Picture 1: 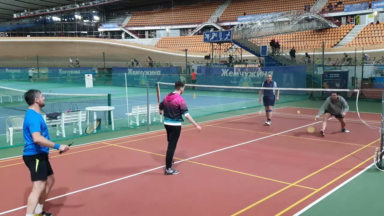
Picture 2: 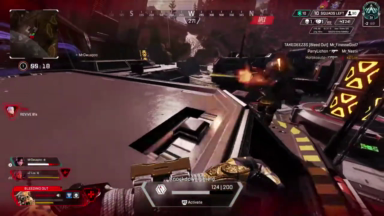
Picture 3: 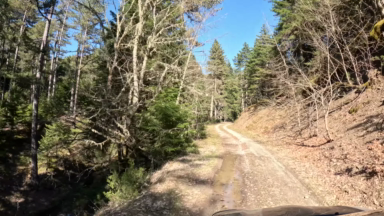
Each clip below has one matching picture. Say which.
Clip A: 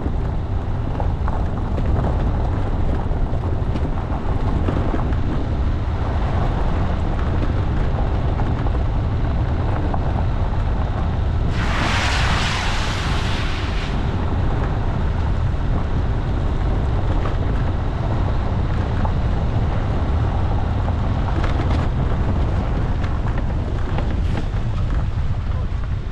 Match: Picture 3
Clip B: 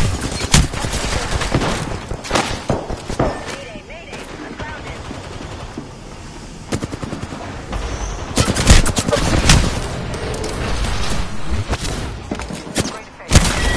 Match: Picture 2